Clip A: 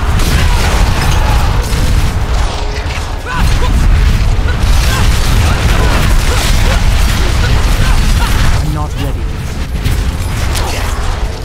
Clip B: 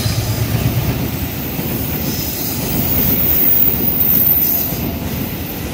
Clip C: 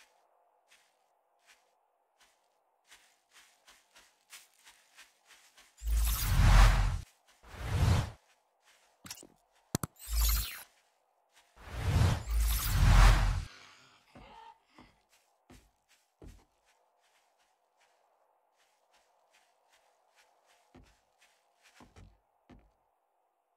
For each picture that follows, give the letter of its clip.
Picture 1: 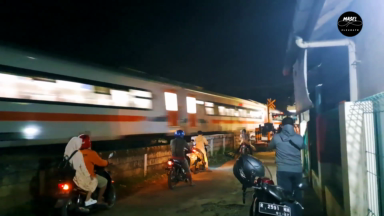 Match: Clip B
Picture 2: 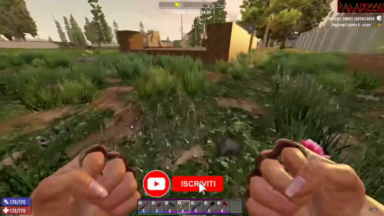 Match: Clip C